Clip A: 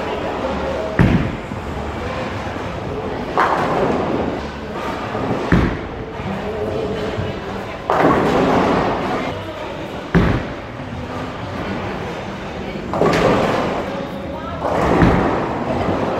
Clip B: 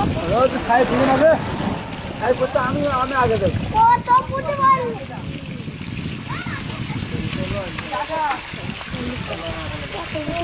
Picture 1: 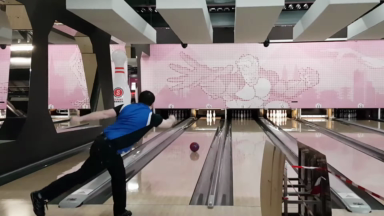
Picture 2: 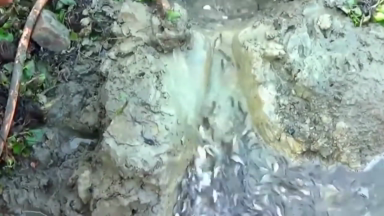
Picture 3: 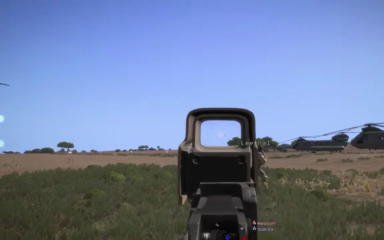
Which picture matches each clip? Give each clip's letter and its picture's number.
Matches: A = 1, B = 2